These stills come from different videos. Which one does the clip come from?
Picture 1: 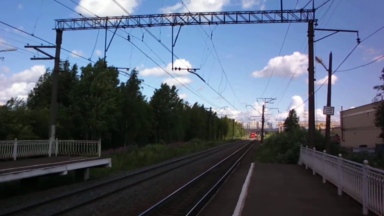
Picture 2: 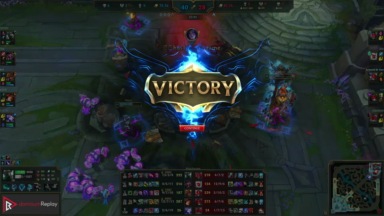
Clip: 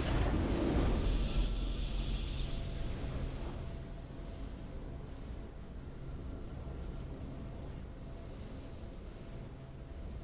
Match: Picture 2